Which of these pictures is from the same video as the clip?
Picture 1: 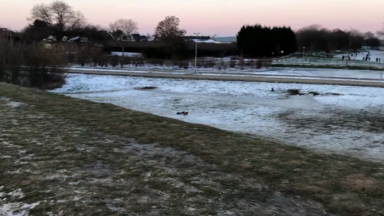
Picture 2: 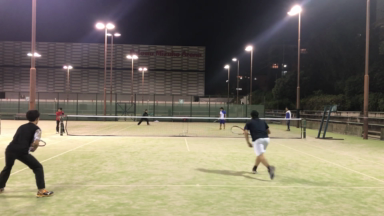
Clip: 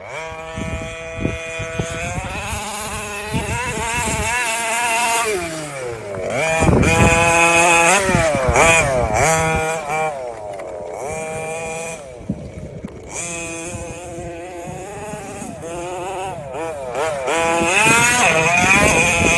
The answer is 1